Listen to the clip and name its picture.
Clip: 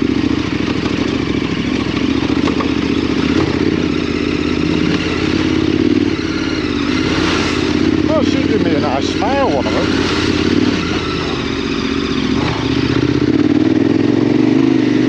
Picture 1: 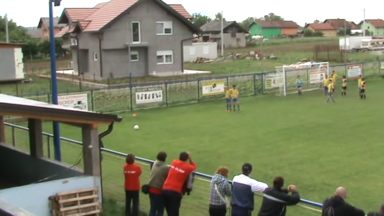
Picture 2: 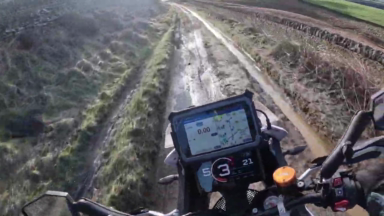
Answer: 2